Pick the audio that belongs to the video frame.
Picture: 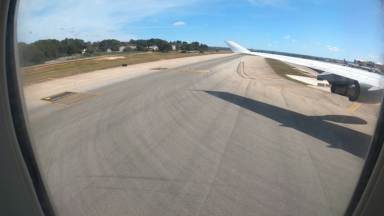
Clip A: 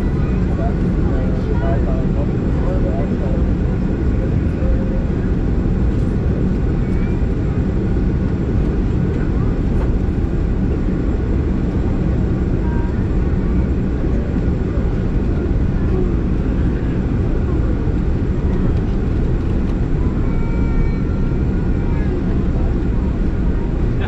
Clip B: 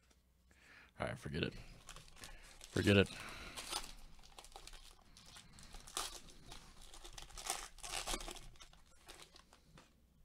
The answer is A